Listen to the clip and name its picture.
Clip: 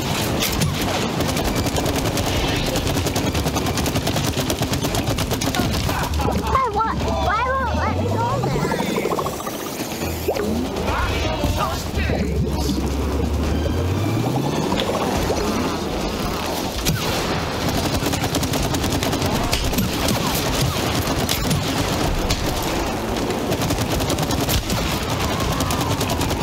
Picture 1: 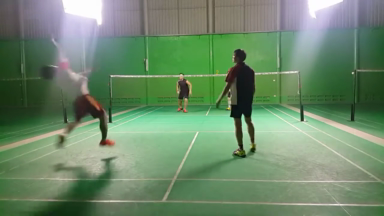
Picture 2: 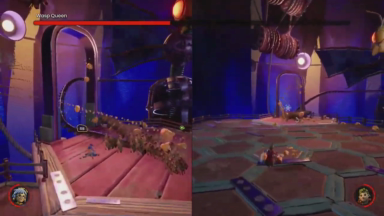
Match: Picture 2